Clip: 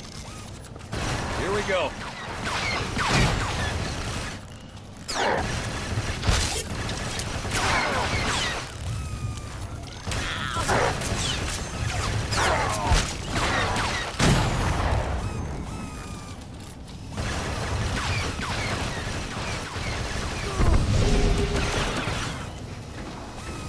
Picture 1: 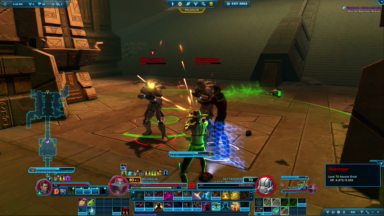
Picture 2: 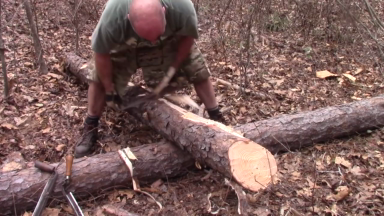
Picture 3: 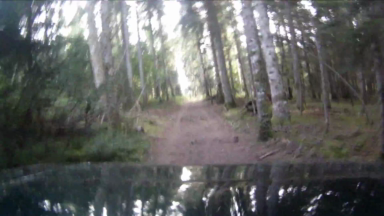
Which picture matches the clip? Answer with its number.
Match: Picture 1